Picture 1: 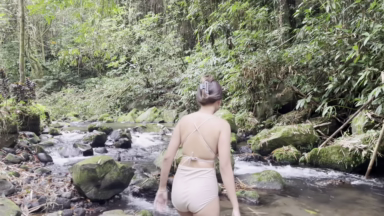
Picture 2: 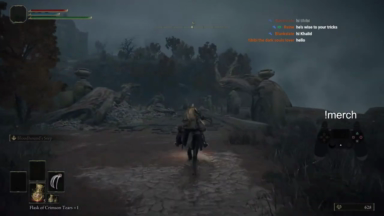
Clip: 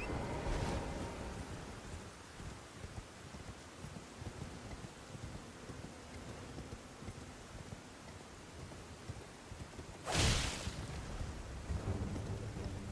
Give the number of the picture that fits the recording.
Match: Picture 2